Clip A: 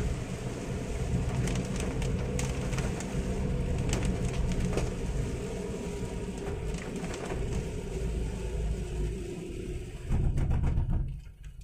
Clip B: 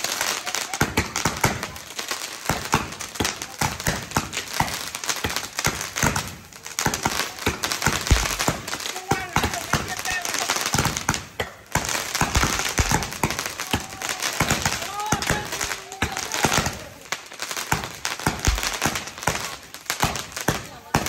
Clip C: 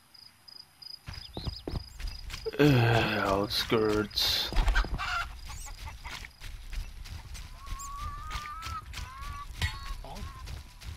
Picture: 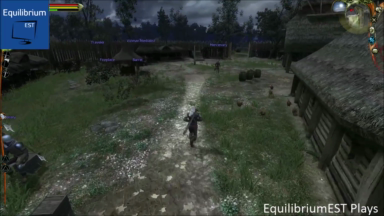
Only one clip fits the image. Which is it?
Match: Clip C